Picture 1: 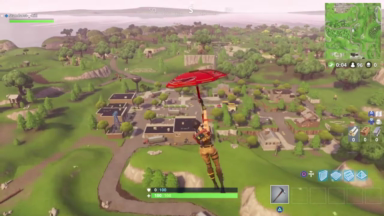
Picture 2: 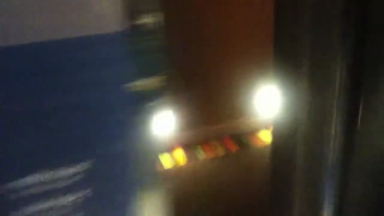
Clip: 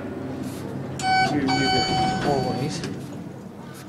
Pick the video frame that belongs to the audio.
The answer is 2